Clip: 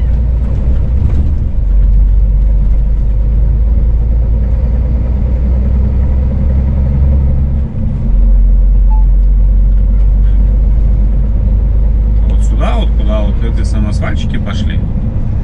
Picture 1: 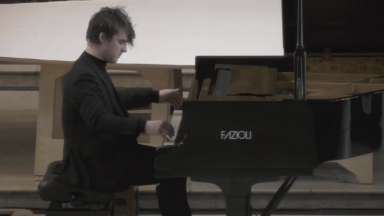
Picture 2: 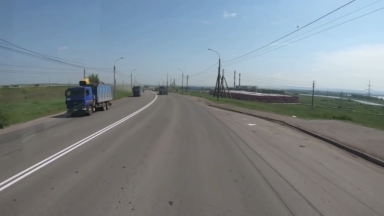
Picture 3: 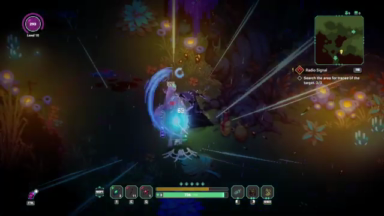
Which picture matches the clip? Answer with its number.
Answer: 2